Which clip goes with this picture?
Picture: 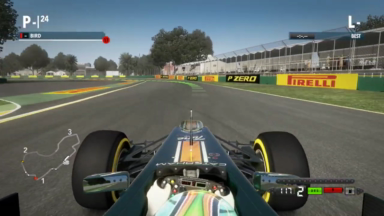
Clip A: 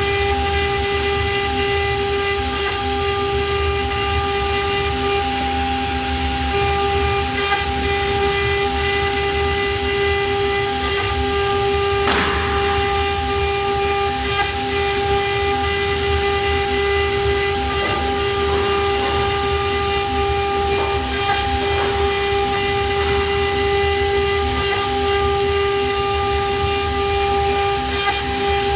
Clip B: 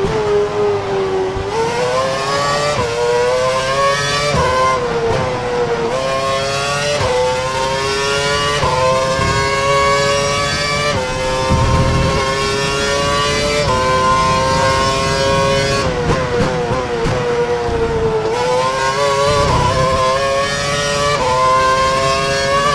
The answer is B